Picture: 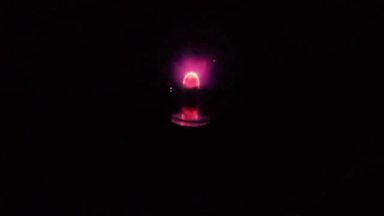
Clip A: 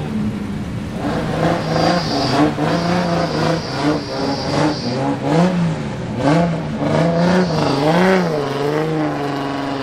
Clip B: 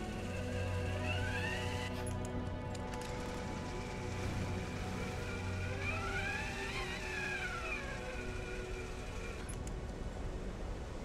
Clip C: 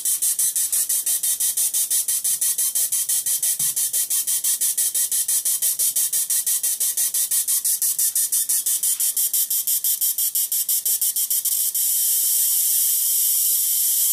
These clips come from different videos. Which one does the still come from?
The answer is C